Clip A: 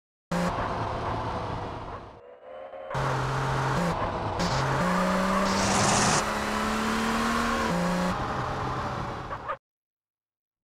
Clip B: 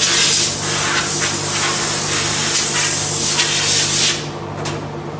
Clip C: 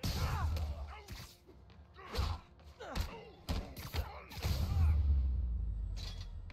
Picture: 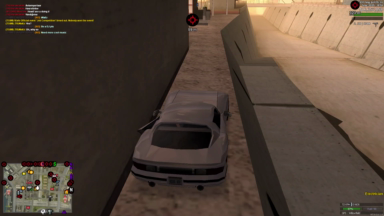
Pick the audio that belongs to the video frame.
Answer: A